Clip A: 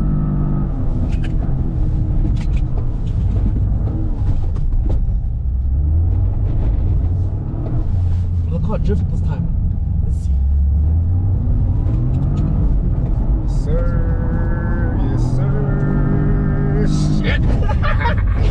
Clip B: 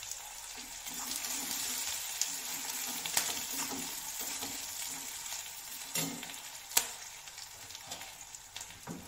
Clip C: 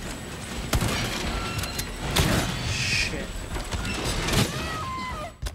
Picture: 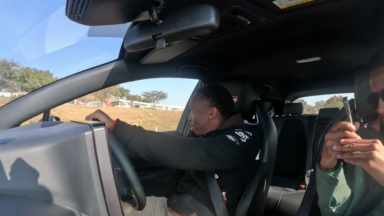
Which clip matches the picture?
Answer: A